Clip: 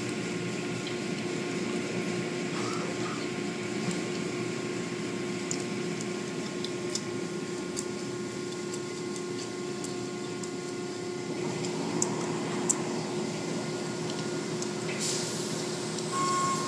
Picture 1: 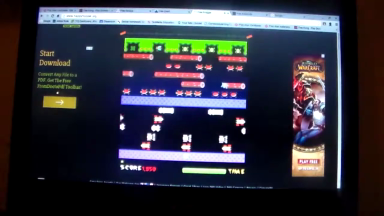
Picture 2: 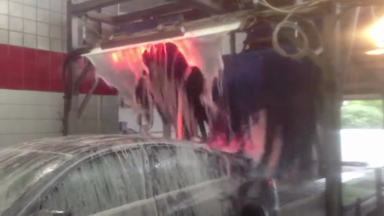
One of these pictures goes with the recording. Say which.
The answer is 2